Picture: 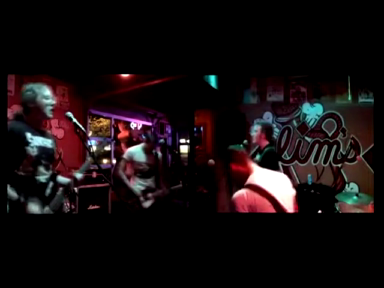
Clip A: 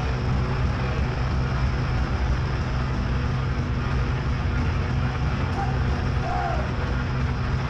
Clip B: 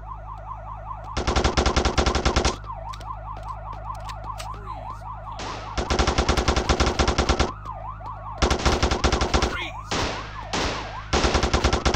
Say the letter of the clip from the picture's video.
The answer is A